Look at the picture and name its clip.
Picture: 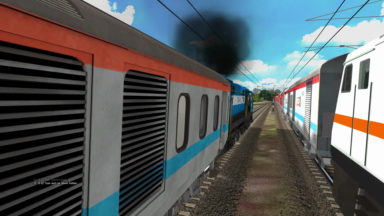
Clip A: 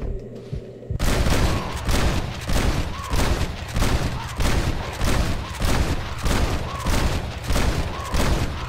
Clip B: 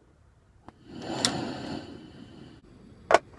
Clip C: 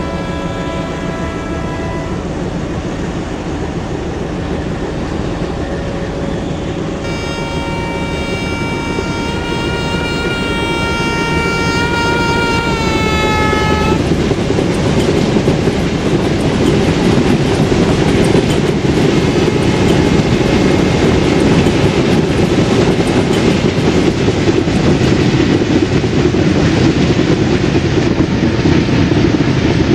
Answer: C